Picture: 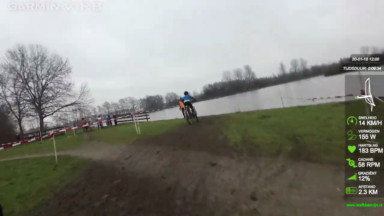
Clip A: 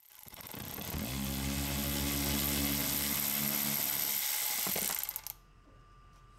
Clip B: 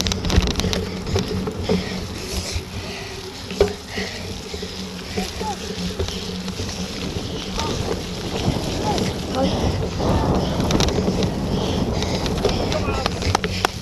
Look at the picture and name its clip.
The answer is B